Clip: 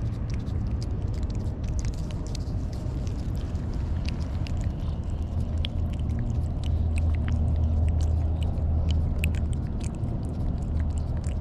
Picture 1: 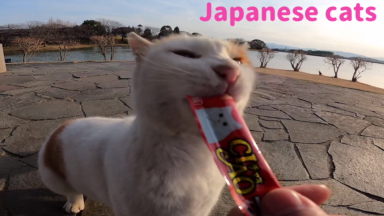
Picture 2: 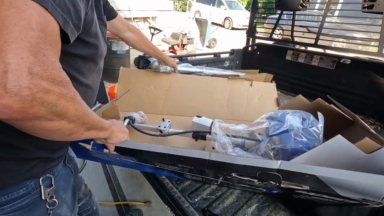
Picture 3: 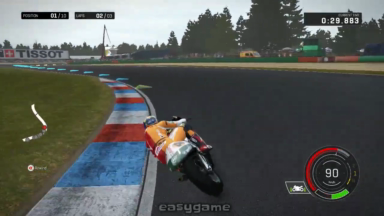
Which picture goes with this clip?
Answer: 1